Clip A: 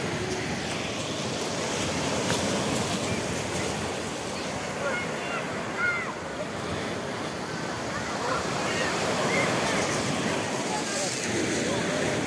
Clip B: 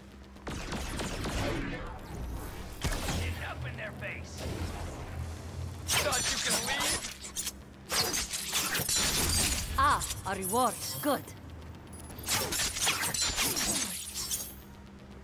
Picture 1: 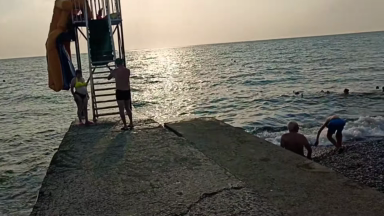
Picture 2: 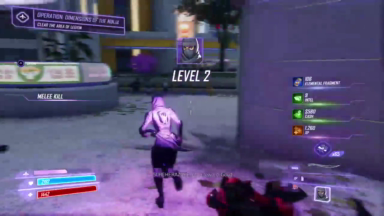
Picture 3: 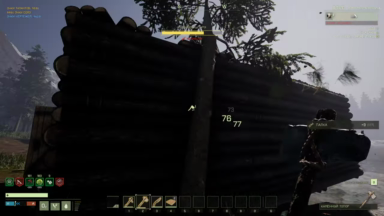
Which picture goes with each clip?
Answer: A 1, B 2